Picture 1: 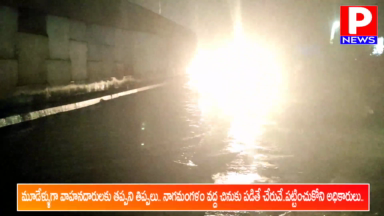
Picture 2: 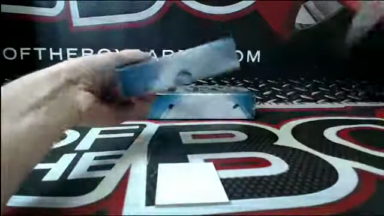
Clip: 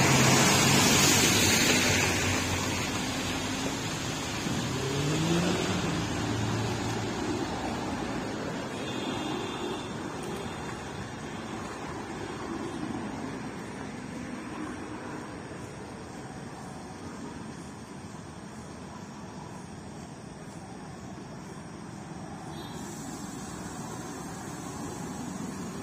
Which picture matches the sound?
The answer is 1